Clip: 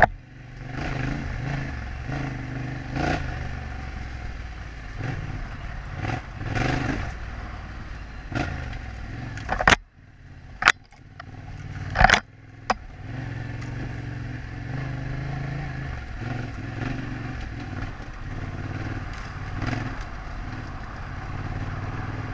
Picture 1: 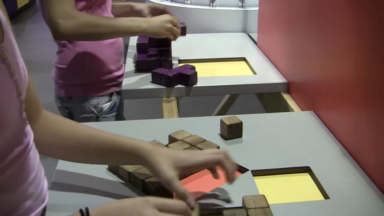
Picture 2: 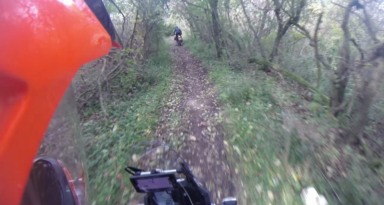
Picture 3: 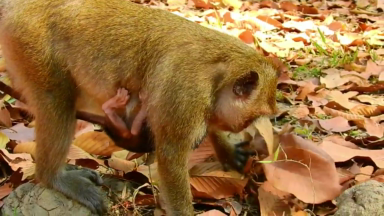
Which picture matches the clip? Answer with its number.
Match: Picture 2